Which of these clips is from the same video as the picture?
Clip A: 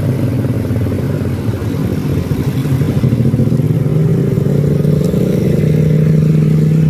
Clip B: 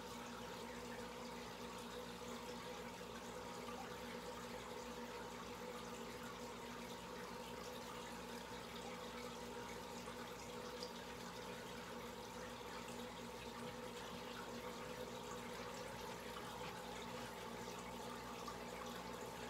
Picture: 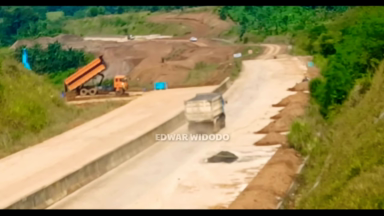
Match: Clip A